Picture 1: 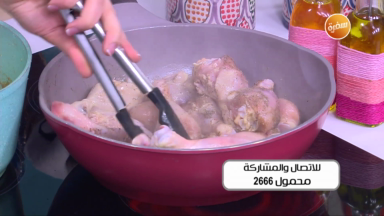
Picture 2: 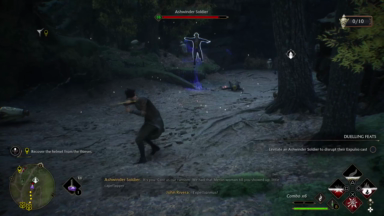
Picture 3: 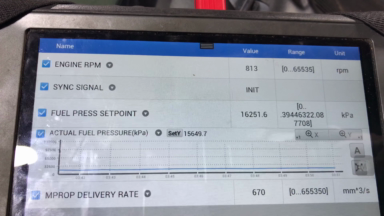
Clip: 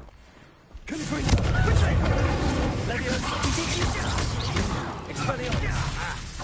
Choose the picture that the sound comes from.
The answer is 2